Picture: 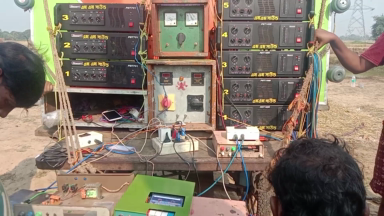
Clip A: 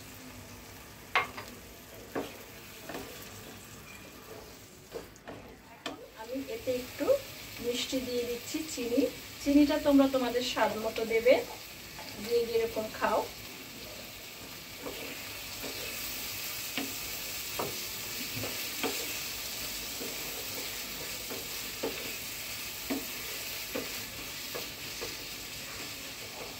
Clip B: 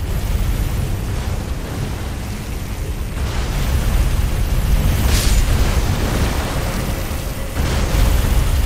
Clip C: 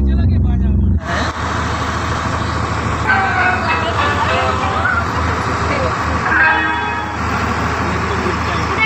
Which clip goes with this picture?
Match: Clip C